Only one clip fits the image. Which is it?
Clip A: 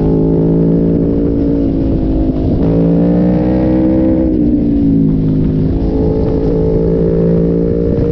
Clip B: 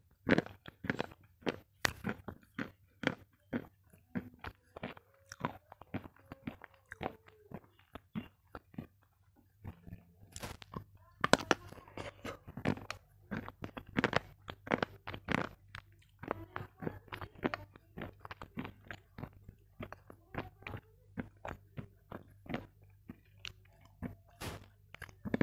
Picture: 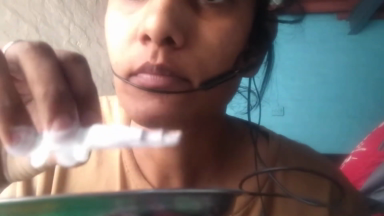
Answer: B